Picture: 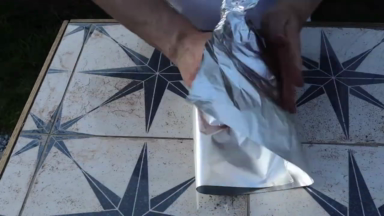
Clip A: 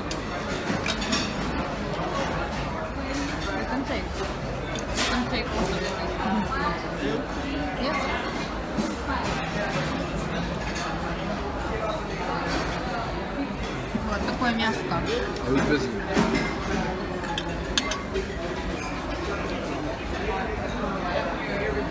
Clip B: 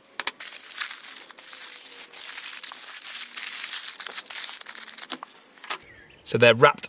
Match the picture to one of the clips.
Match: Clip B